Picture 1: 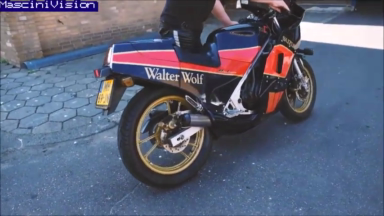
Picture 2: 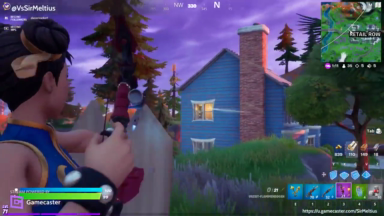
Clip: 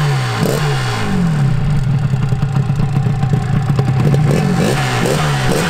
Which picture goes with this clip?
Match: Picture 1